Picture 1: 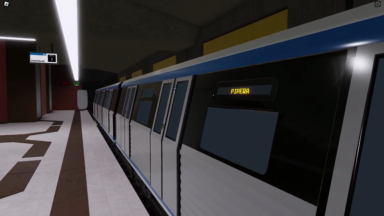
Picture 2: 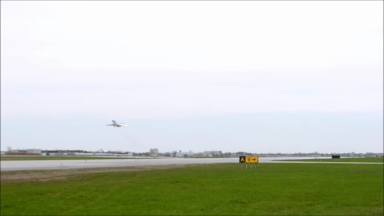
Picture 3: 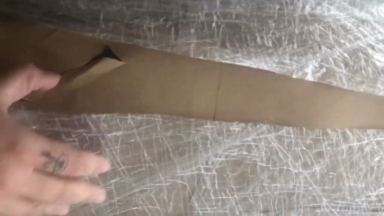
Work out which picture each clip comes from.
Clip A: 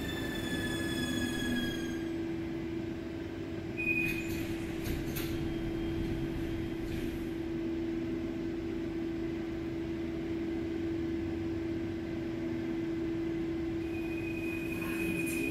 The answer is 1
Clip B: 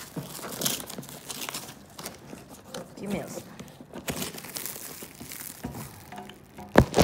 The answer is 3